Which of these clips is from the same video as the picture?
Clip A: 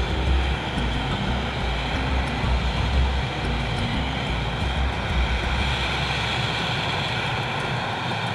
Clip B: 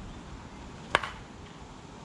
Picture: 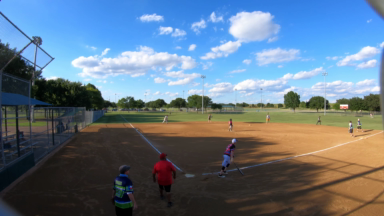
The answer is B